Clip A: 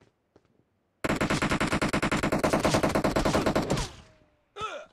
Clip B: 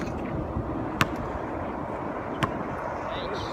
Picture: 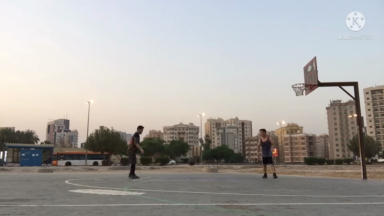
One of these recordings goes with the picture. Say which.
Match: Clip B